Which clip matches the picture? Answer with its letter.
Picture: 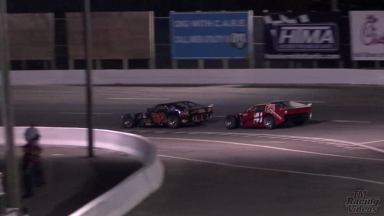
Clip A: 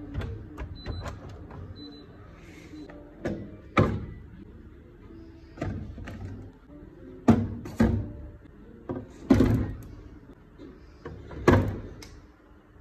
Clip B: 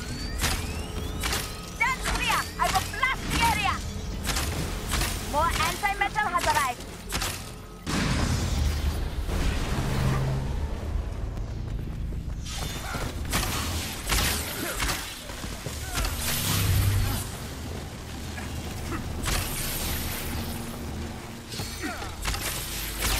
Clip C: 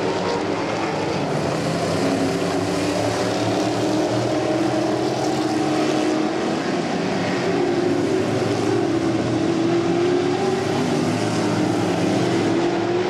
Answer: C